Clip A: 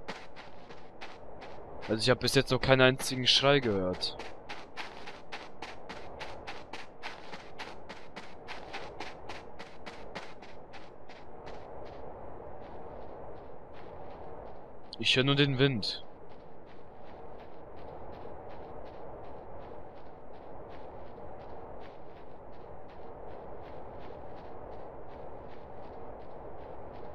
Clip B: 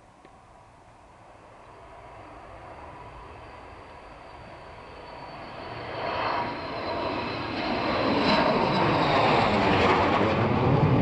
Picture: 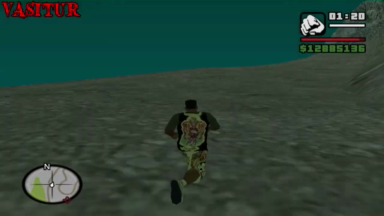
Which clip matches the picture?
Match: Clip A